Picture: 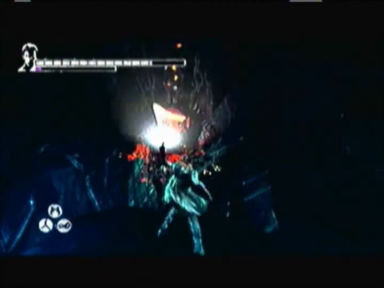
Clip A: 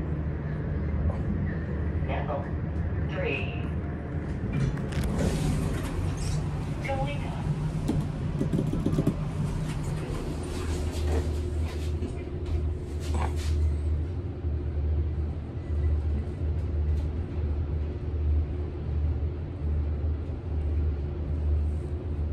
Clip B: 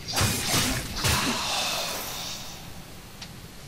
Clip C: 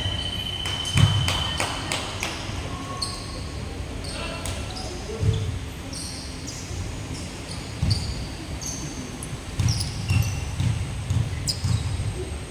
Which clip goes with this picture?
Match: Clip B